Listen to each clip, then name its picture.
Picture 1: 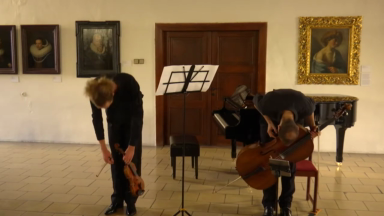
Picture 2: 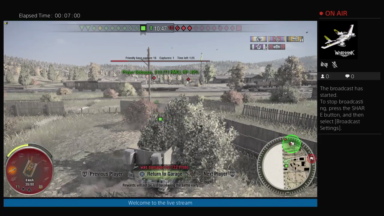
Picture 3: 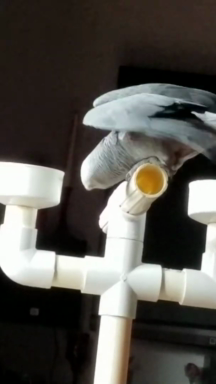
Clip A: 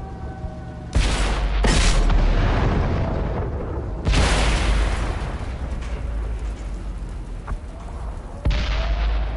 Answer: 2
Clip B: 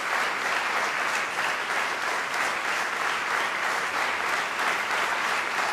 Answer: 1